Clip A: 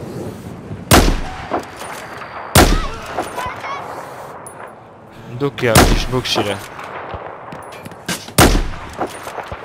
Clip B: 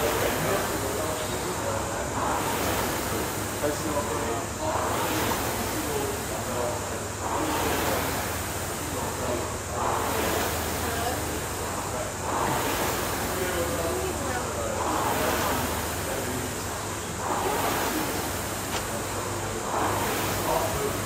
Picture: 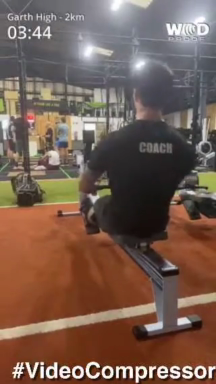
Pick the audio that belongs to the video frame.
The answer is B